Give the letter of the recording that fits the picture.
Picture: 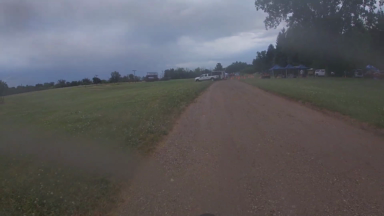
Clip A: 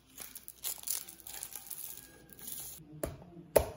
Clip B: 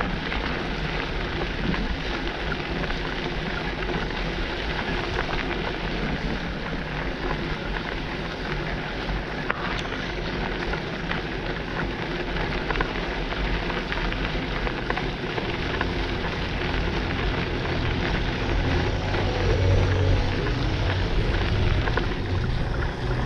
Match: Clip B